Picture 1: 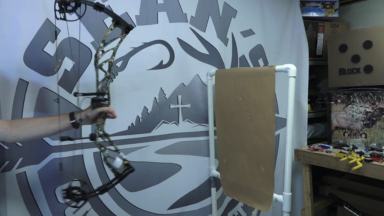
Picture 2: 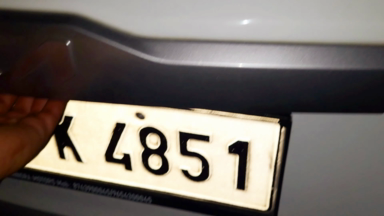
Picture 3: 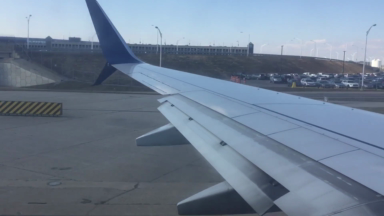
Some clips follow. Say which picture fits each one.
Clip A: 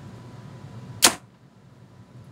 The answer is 1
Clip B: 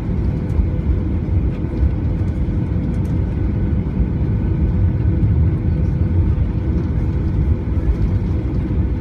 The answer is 3